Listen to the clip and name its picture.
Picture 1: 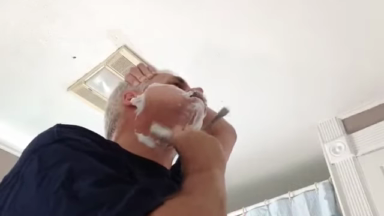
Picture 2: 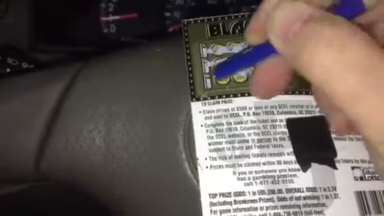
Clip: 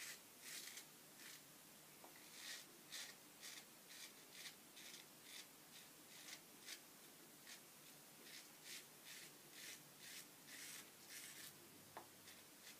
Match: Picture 1